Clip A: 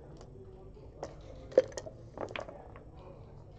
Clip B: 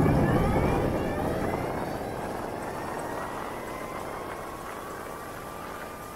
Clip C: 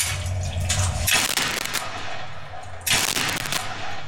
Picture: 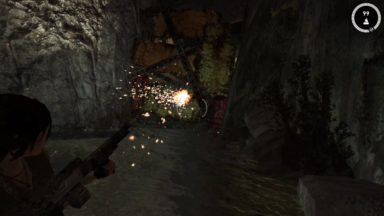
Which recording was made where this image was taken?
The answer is C